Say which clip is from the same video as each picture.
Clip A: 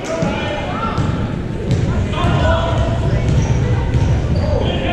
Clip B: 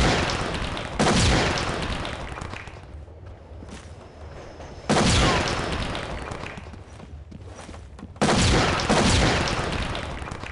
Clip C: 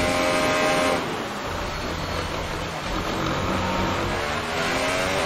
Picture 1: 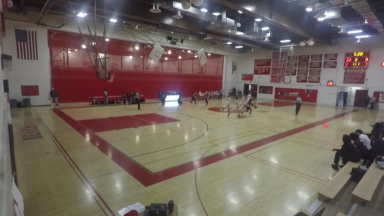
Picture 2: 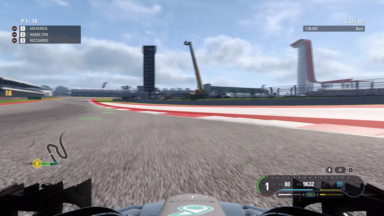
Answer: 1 A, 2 C